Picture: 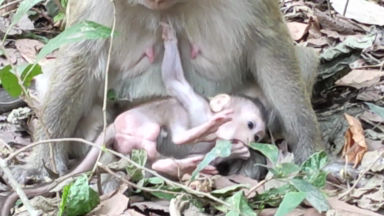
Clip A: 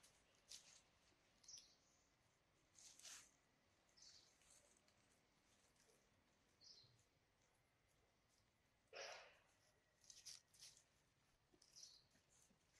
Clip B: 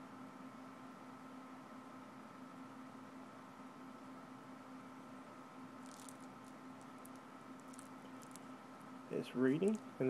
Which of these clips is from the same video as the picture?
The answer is A